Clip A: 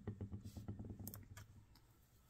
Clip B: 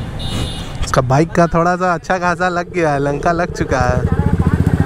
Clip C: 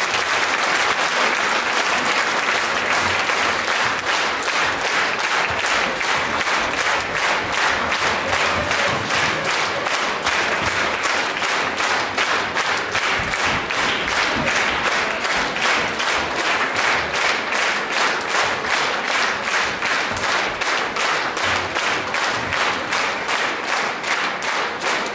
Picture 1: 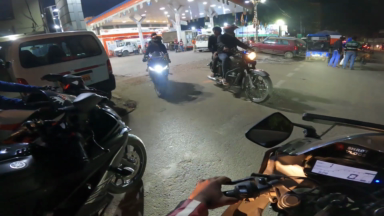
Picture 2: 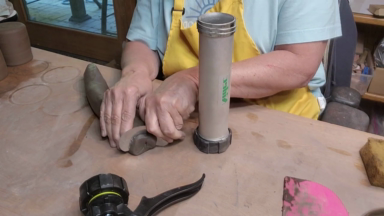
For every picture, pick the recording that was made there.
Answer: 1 B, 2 A